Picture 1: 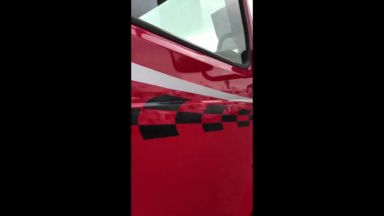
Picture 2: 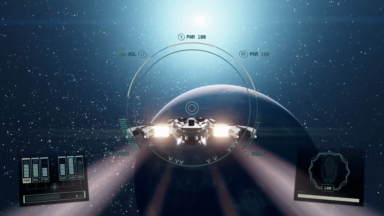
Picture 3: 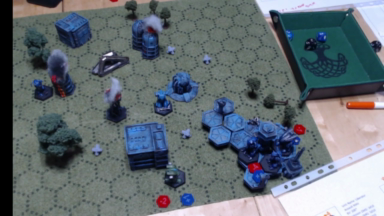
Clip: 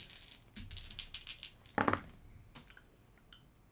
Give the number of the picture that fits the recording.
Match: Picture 3